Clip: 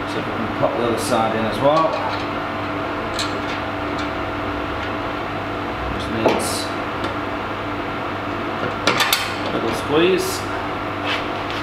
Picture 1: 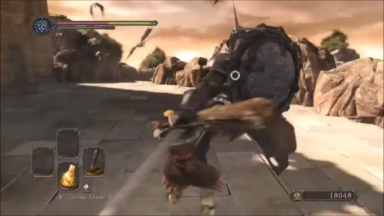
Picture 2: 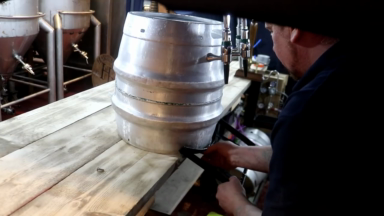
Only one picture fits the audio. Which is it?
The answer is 2